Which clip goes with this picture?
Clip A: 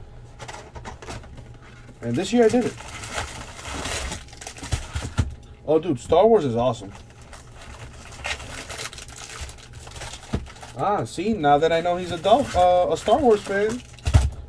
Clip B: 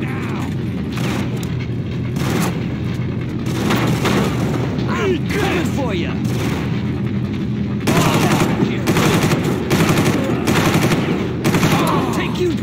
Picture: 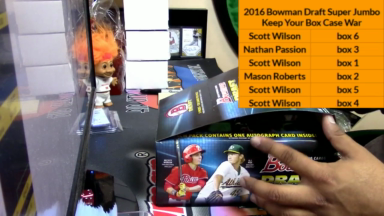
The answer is A